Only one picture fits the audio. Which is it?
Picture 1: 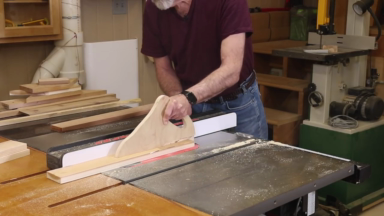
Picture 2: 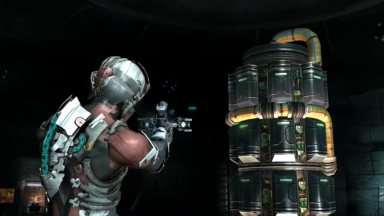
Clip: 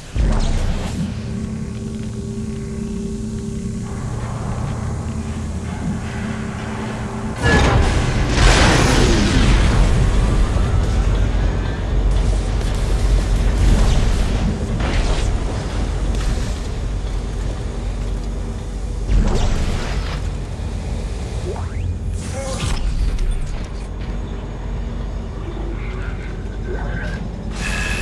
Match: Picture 2